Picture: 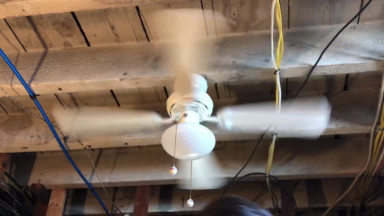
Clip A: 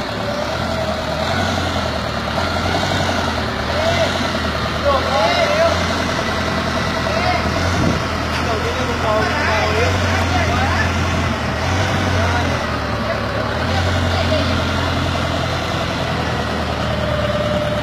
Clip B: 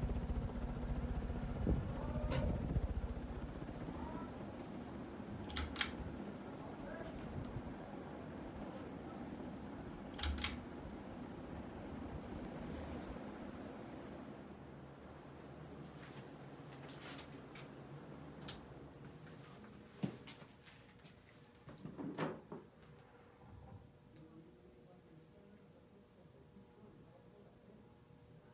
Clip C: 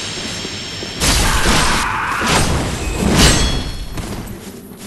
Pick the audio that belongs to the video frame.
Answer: B